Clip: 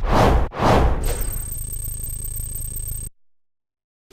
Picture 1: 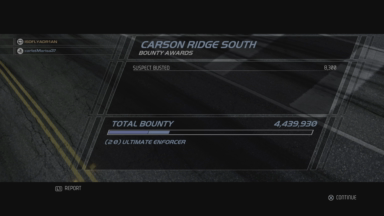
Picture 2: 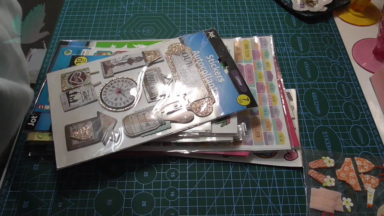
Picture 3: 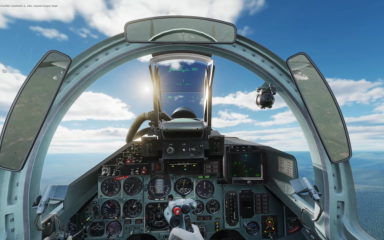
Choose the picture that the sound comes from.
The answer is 1